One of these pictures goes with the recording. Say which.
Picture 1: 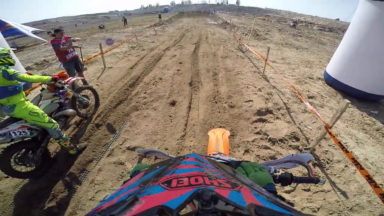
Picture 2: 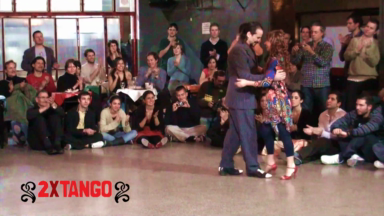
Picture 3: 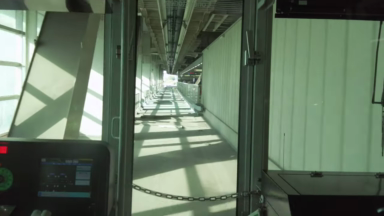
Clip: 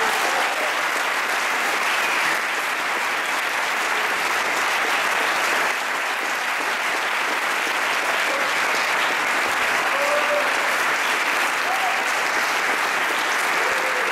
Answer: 2